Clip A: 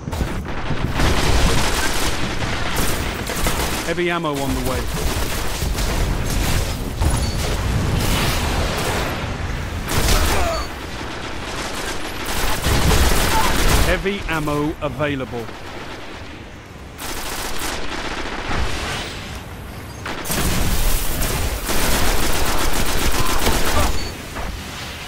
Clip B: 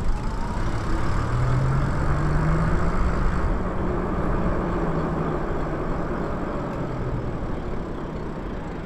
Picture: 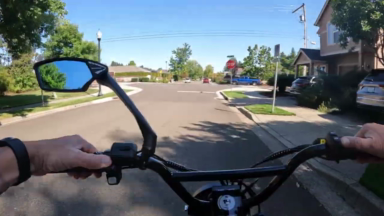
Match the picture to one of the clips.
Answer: B